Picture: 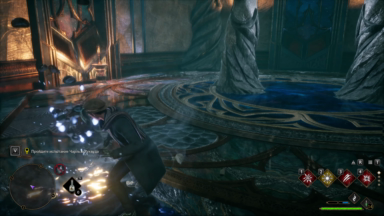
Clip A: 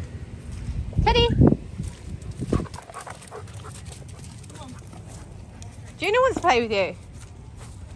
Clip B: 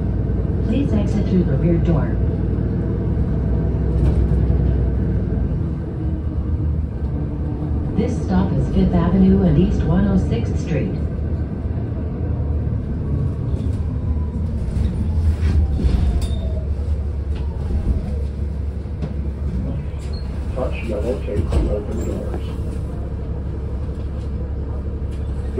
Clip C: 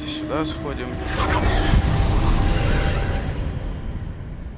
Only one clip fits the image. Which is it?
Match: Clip C